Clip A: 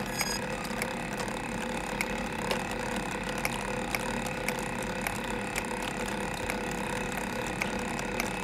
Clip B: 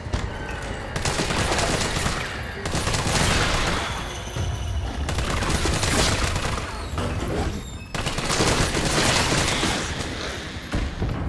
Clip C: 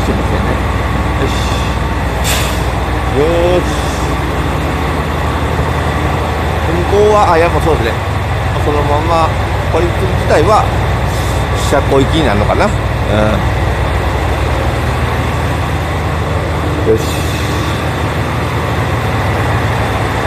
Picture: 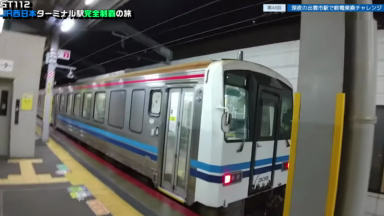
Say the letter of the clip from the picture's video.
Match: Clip C